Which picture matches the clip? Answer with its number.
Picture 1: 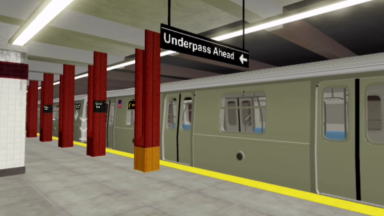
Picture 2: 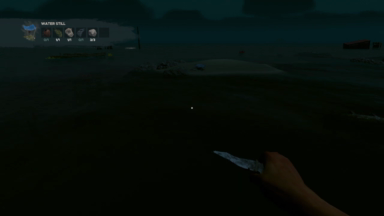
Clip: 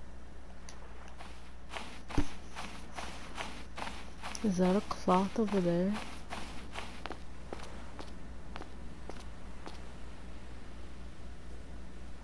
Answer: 2